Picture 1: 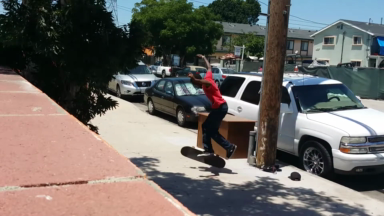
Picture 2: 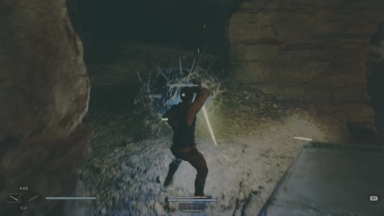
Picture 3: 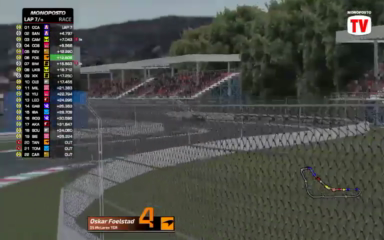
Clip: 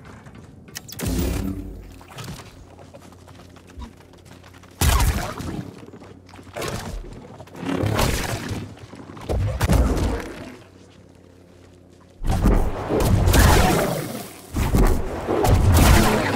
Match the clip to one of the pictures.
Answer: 2